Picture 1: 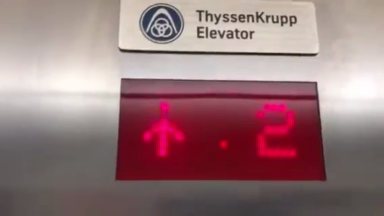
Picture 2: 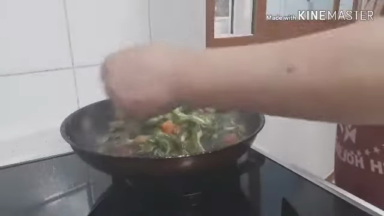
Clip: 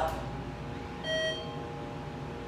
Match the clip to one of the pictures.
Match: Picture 1